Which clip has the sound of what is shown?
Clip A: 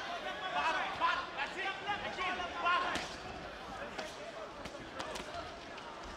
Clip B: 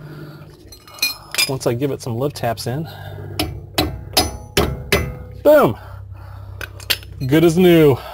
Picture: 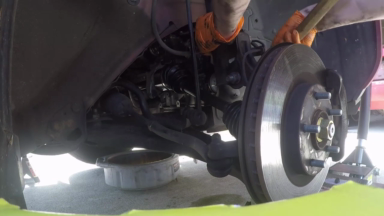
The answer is B